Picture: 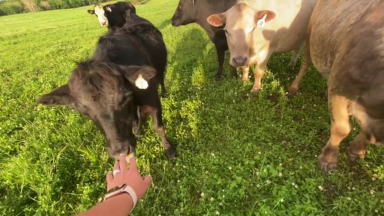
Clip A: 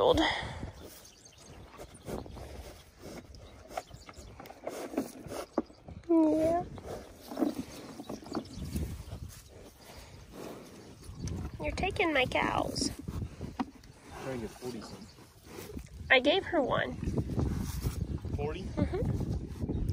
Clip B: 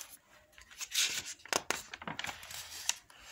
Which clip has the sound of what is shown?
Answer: A